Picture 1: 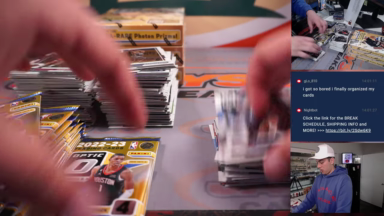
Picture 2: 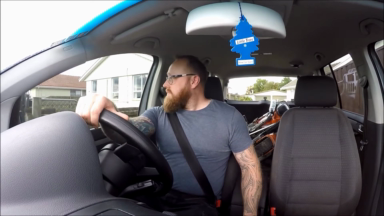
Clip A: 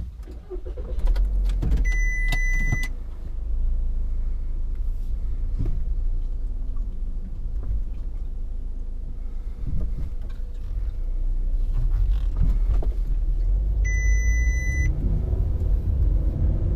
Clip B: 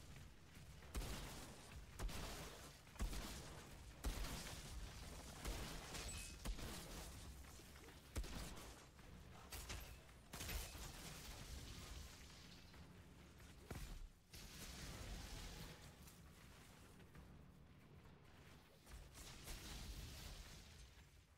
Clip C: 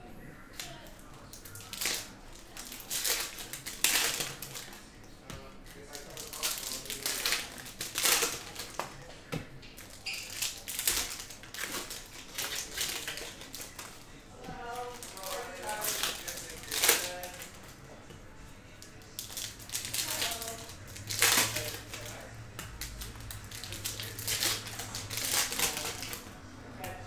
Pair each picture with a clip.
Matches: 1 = C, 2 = A